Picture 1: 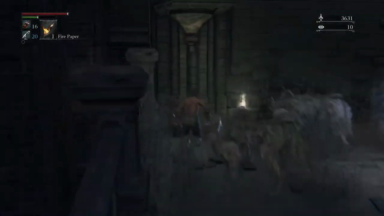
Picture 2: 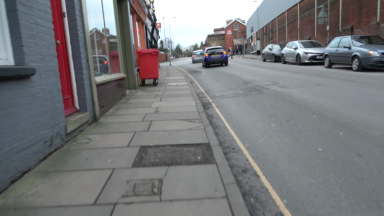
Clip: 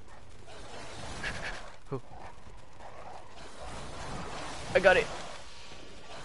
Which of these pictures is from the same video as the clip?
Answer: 1